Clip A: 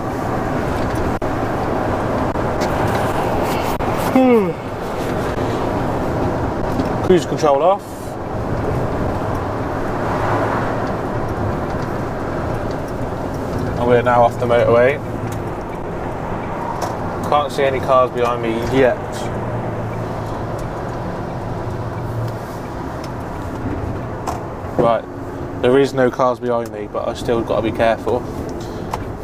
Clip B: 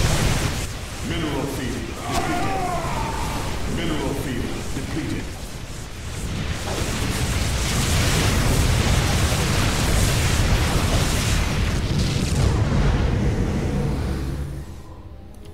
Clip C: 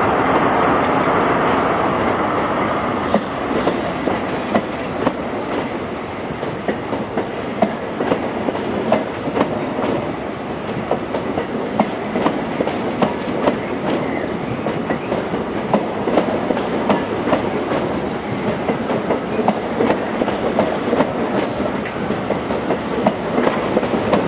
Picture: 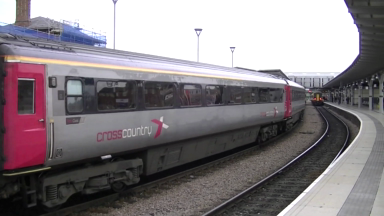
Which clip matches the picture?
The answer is C